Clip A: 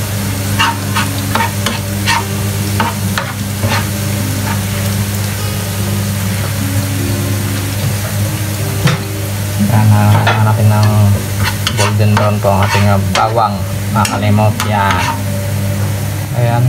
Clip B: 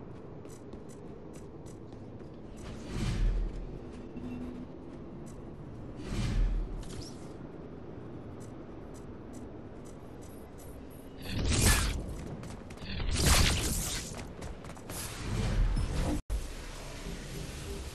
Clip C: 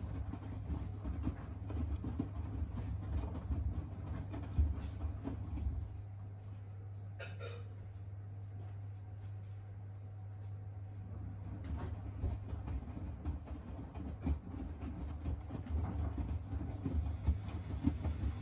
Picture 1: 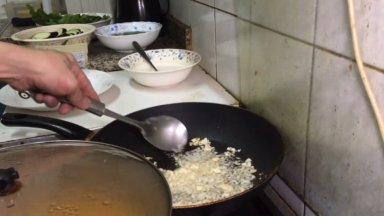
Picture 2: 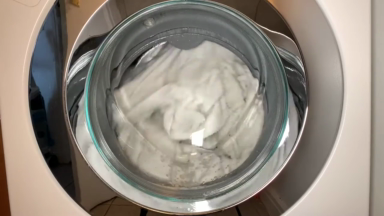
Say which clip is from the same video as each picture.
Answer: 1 A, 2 C